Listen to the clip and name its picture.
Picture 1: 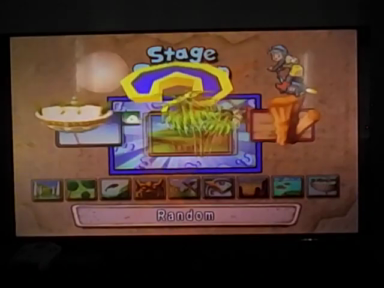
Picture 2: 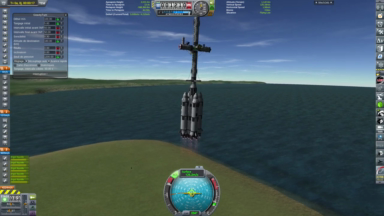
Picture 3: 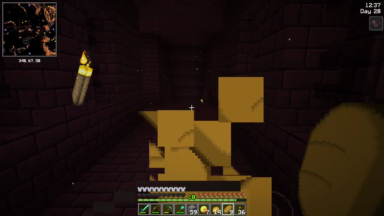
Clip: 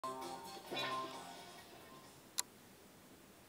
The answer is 1